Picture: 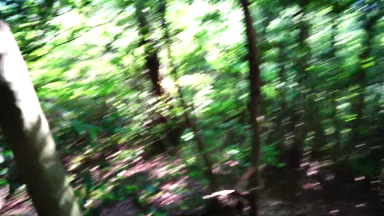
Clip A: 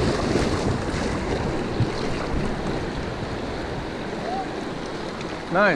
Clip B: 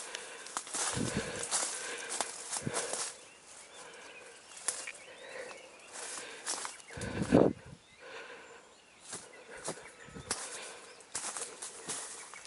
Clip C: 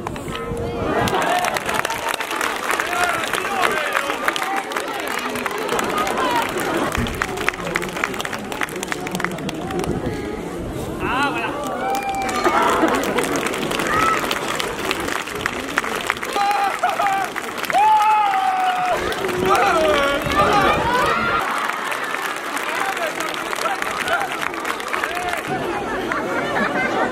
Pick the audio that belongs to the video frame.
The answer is B